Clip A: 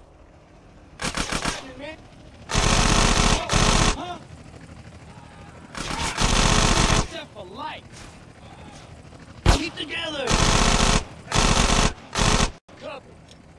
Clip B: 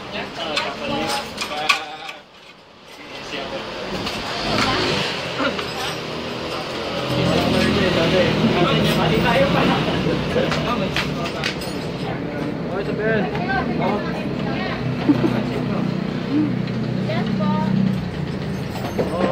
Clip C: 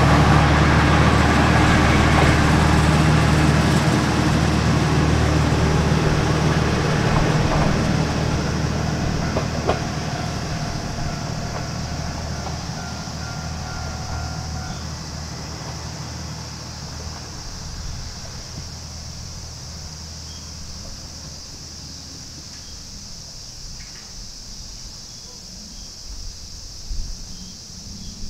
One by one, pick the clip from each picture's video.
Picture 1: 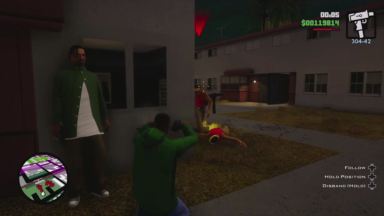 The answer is A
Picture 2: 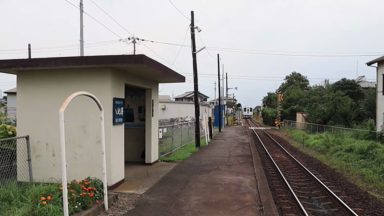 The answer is C